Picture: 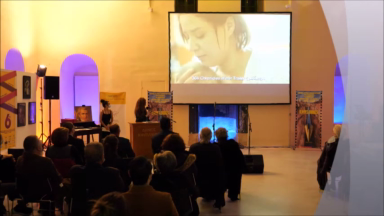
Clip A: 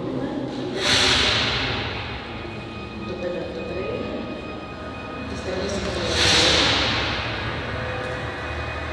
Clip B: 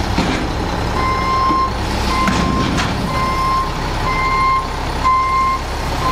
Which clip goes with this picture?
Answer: A